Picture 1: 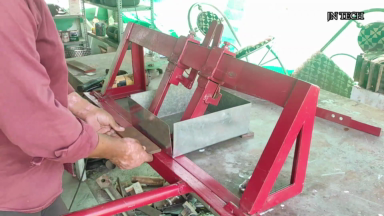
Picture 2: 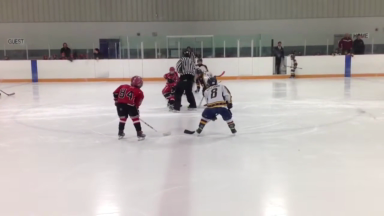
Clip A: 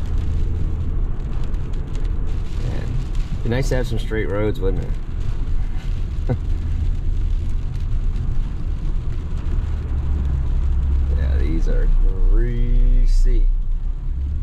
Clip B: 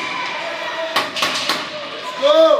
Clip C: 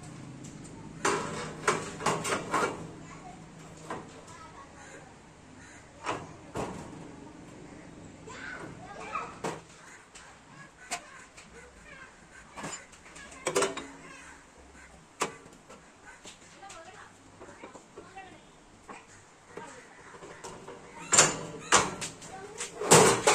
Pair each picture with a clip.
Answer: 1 C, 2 B